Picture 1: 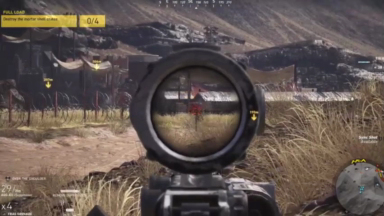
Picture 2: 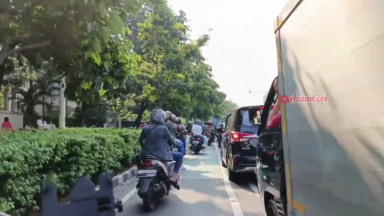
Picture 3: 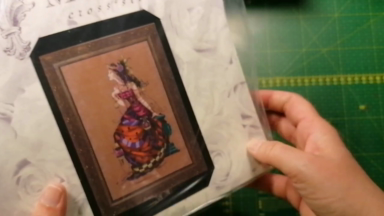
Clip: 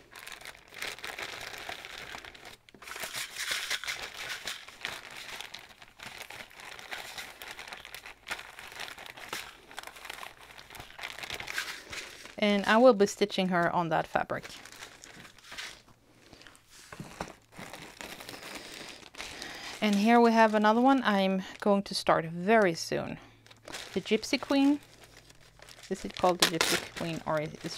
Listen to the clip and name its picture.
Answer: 3